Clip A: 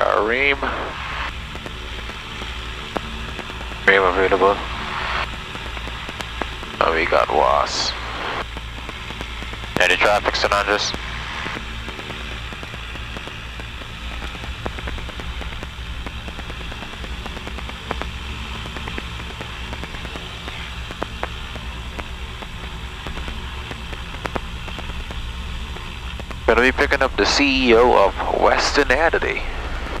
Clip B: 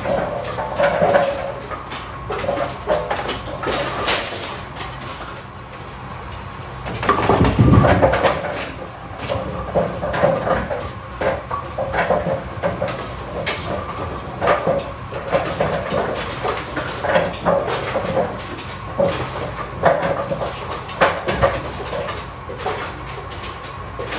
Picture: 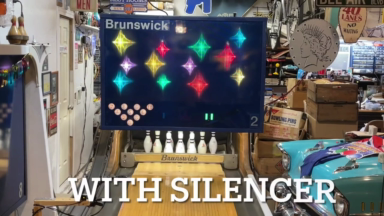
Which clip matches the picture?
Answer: B